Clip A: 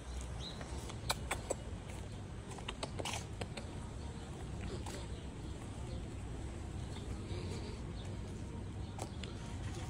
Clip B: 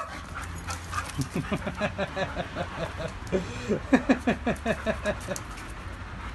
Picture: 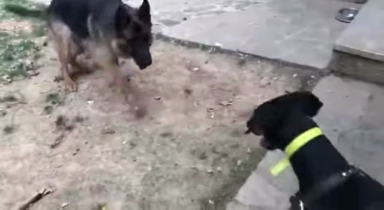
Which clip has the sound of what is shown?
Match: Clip B